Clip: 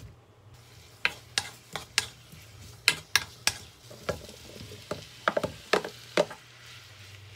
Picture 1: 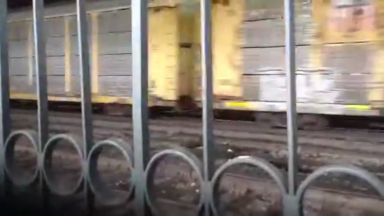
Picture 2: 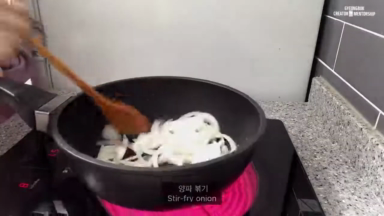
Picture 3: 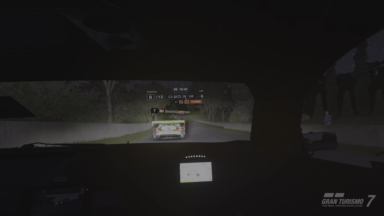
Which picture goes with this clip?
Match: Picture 2